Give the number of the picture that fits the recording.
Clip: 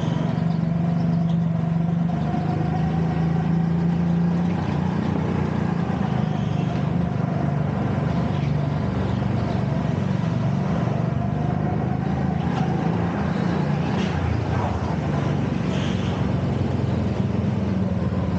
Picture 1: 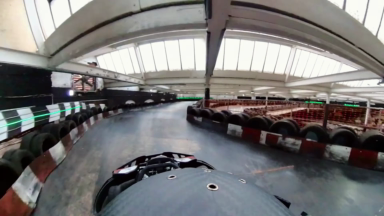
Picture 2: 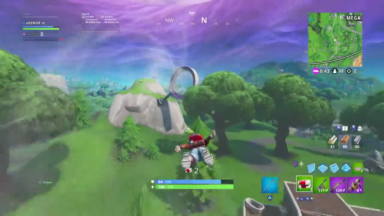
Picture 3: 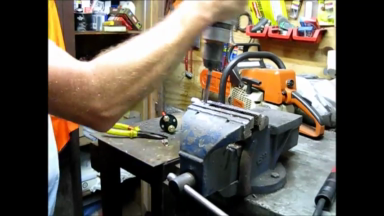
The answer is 1